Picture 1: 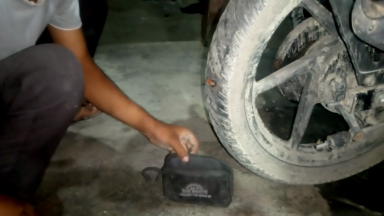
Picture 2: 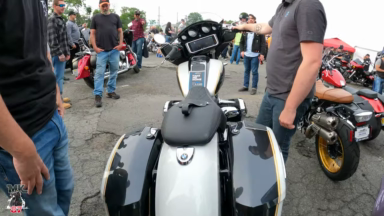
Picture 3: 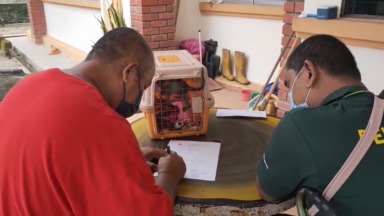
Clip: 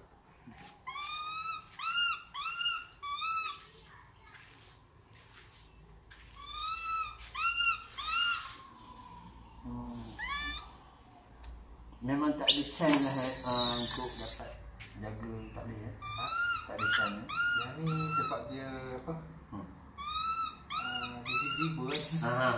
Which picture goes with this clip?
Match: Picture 3